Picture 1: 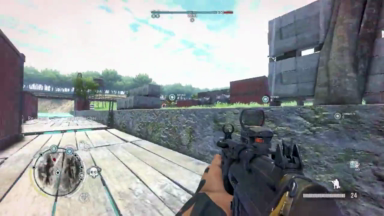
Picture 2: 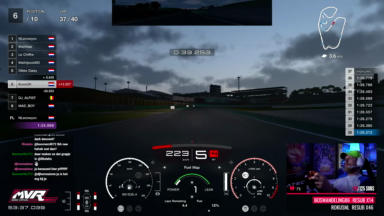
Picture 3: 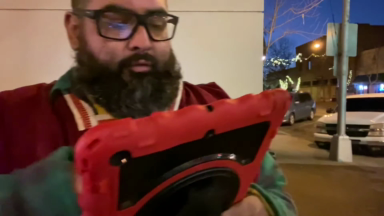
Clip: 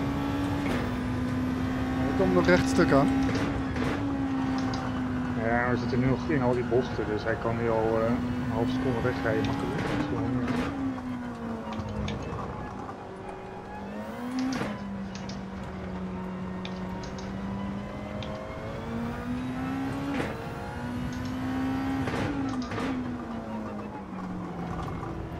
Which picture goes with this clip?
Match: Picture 2